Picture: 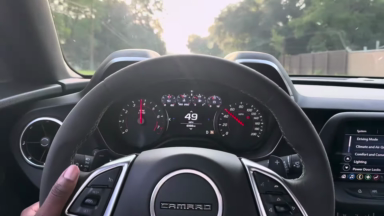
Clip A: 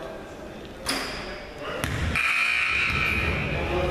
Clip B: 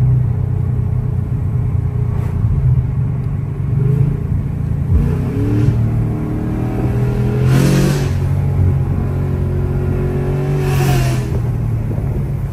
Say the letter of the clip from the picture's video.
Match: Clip B